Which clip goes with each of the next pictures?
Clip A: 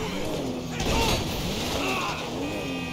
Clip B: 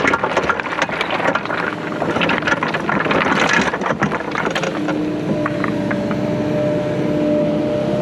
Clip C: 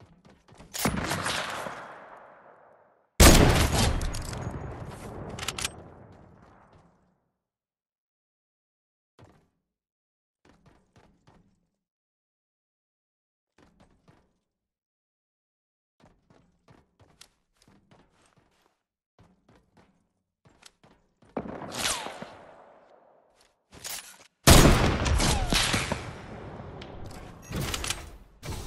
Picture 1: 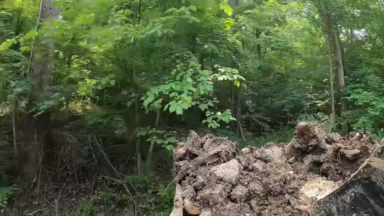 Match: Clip B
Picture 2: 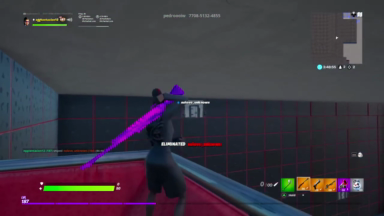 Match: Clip C